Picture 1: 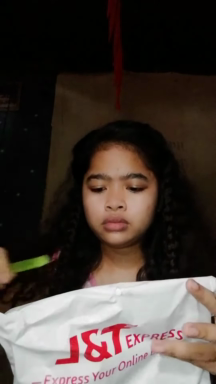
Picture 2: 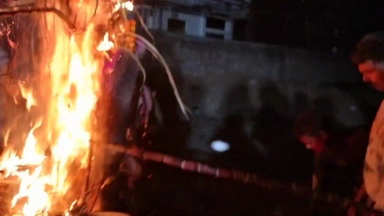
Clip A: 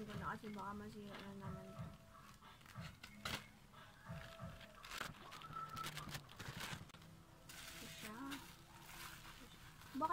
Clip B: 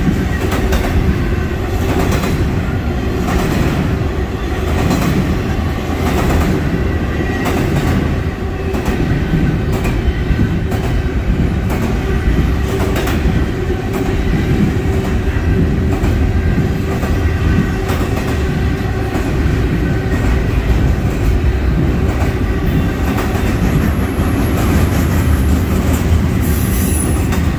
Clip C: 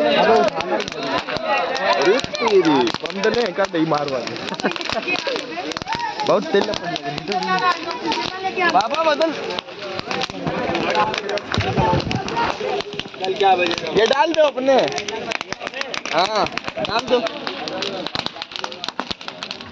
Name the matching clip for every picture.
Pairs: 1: A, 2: C